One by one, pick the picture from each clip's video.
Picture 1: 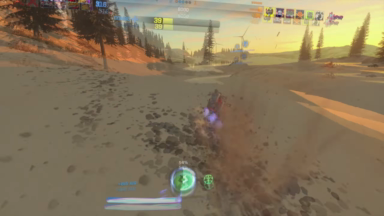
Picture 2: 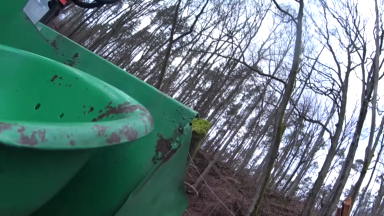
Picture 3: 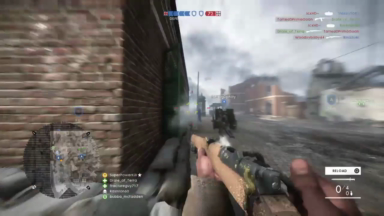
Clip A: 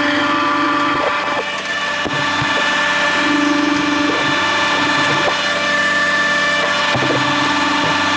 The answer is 2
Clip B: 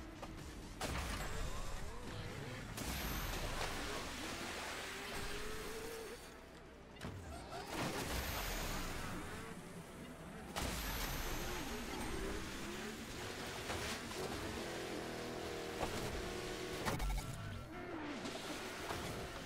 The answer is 1